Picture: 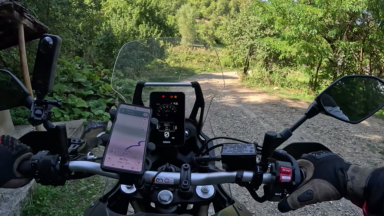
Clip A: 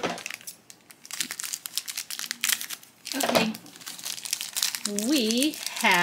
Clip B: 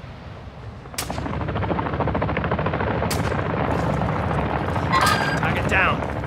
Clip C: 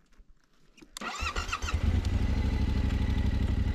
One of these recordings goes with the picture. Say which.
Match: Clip C